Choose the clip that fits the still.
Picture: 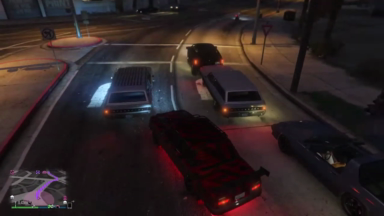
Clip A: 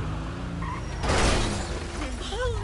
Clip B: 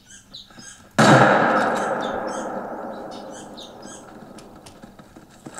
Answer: A